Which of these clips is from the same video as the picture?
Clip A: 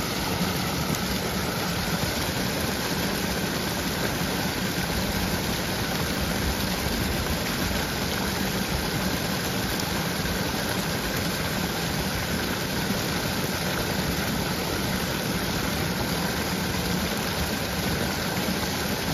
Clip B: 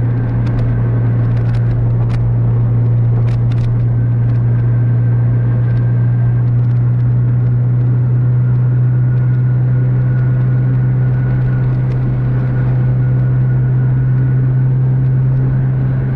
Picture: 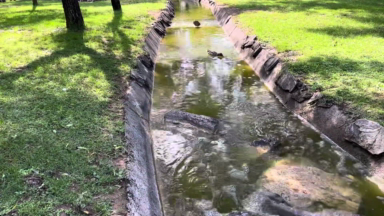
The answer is A